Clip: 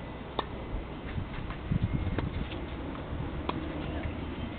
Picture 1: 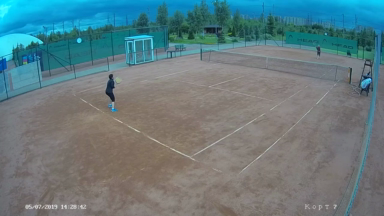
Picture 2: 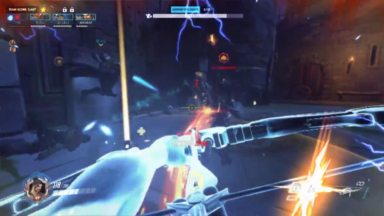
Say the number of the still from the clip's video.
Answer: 1